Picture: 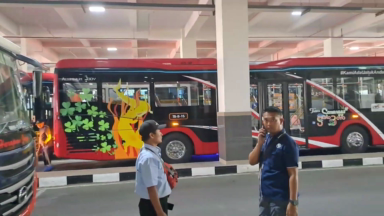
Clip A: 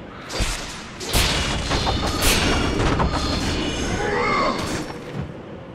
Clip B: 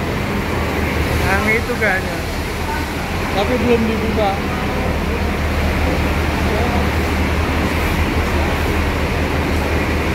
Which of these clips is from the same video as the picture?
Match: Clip B